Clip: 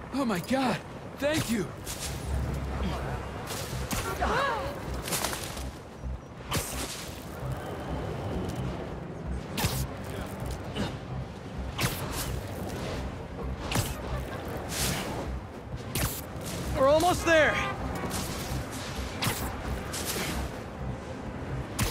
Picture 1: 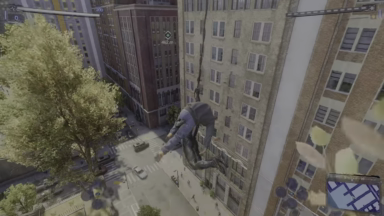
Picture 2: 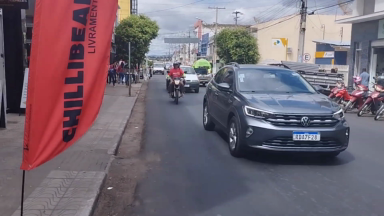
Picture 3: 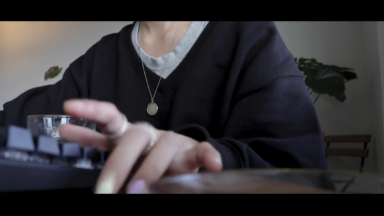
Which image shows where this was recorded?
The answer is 1